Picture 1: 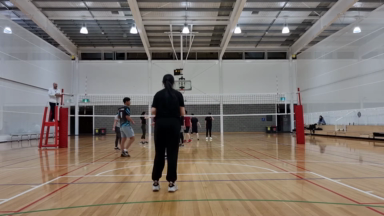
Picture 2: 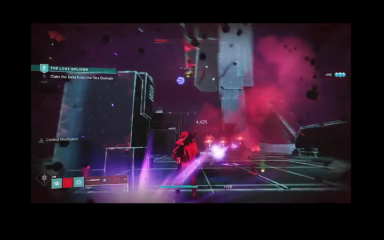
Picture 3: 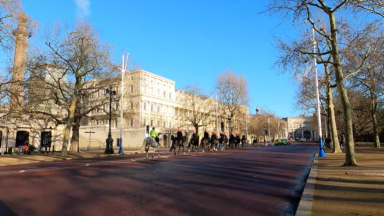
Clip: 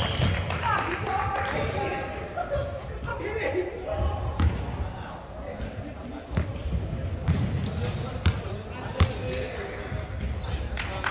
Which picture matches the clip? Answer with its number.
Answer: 1